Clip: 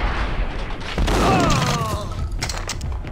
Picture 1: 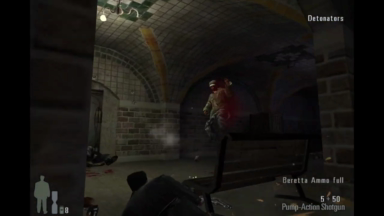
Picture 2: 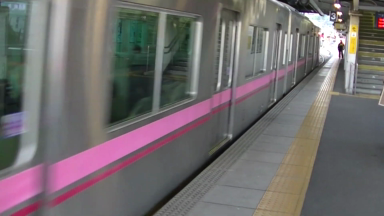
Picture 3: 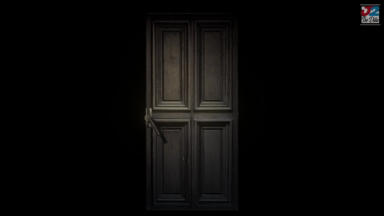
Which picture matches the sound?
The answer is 1